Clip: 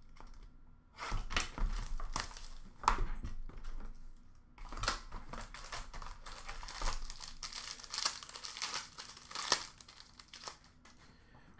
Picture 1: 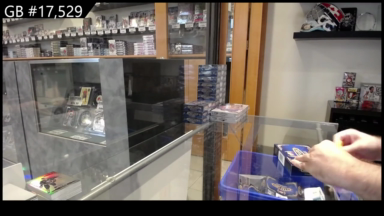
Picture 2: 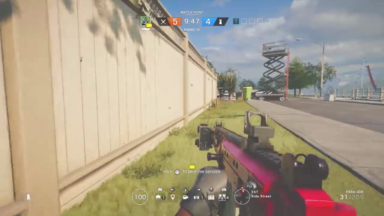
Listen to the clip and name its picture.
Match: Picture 1